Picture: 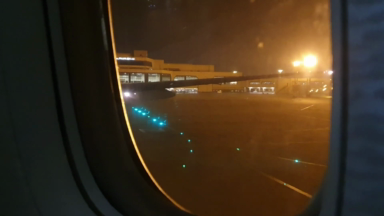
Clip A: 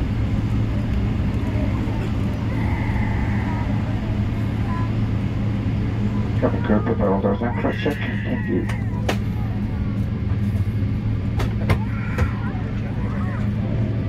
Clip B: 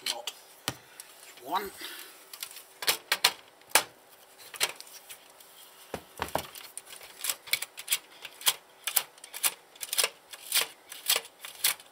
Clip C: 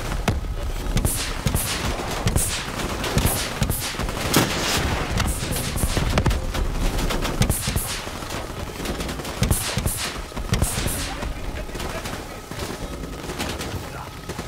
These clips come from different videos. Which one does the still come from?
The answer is A